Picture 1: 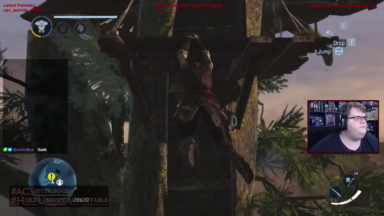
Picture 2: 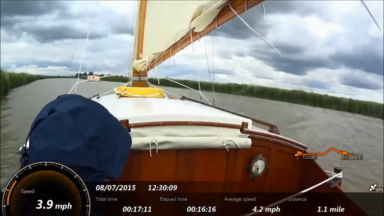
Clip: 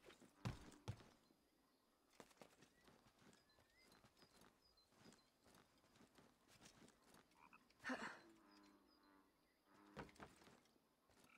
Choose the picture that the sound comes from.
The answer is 1